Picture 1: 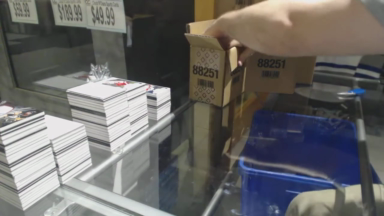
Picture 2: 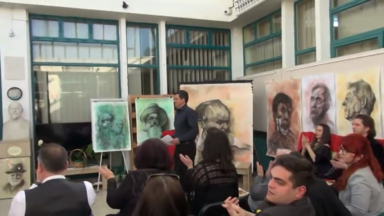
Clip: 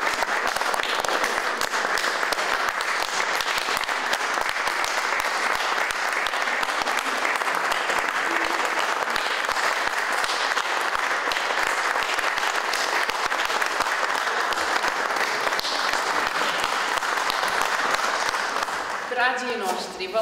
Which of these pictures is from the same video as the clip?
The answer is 2